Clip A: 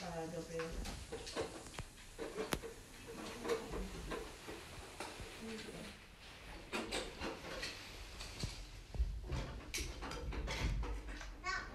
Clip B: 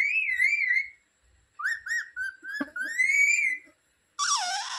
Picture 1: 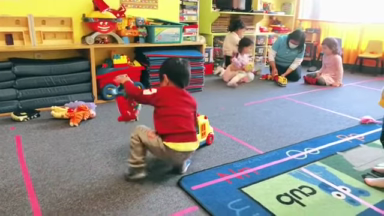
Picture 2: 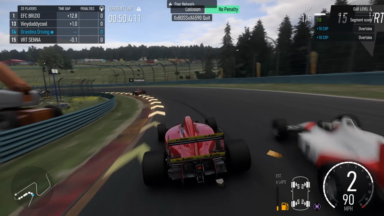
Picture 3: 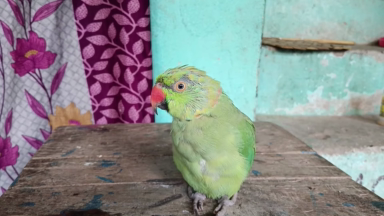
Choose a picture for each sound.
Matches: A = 1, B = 3